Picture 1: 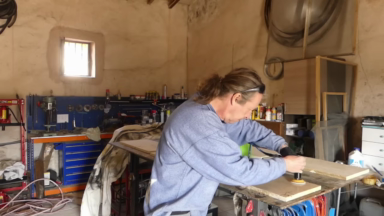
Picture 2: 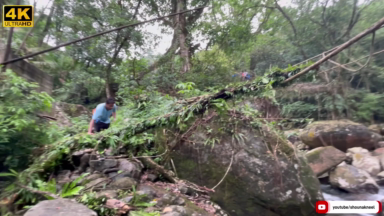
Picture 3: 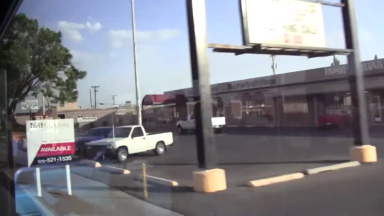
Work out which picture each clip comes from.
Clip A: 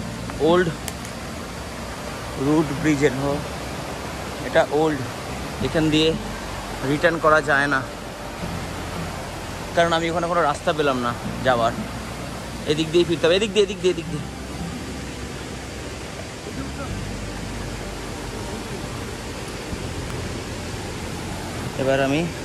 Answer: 2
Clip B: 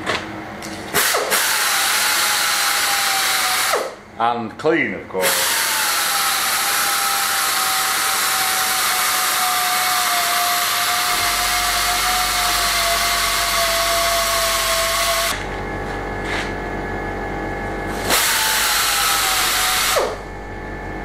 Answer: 1